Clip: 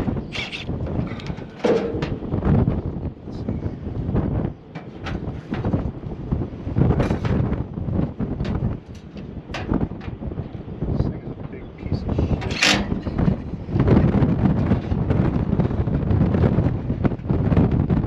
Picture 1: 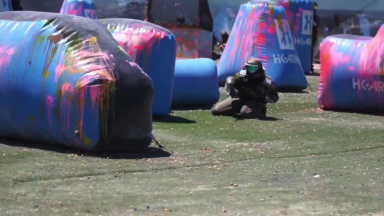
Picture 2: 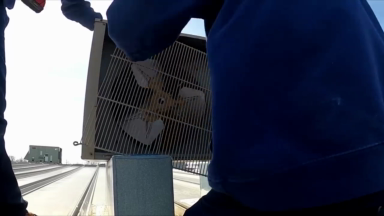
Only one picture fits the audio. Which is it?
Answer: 2